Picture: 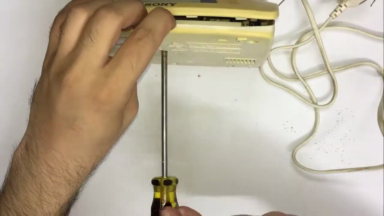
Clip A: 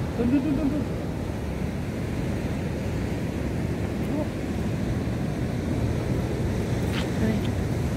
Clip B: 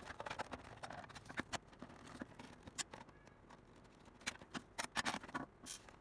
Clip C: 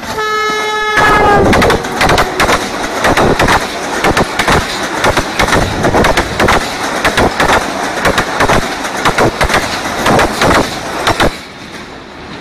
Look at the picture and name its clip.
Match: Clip B